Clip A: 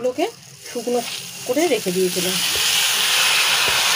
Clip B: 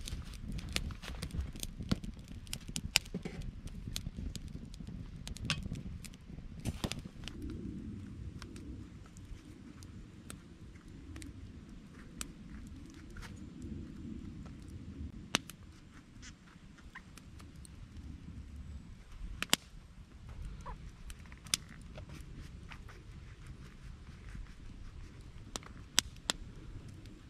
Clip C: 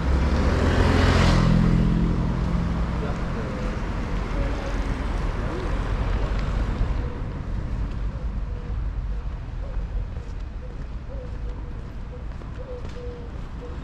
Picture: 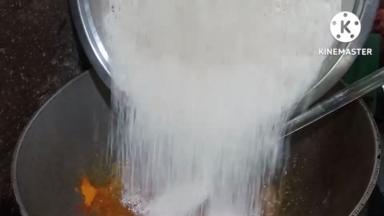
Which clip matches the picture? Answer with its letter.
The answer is A